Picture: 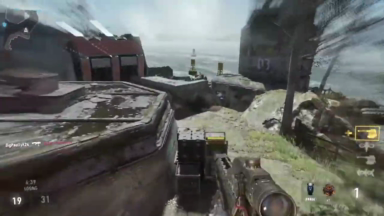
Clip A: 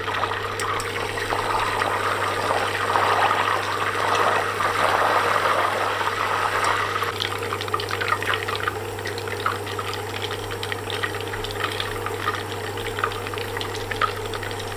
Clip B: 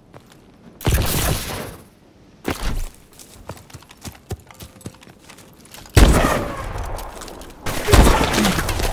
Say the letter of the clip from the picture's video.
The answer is B